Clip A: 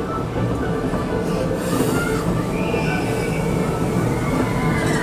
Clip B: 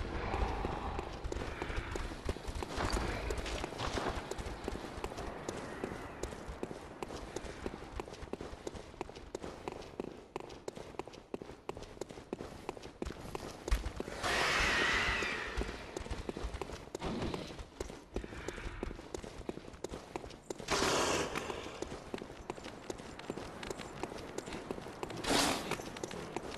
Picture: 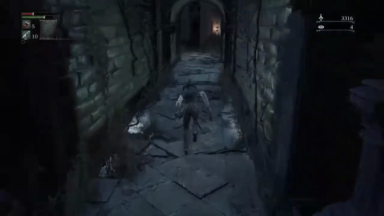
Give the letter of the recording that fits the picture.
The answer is B